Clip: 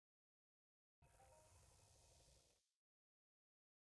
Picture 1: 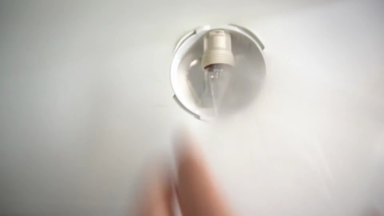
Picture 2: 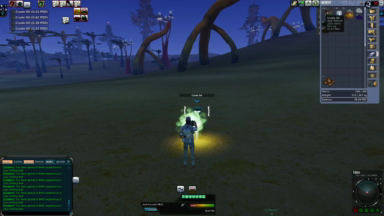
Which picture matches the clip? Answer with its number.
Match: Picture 2